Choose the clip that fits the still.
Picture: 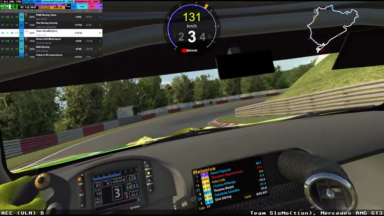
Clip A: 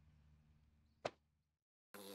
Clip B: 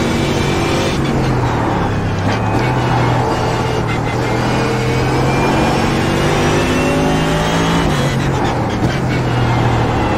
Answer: B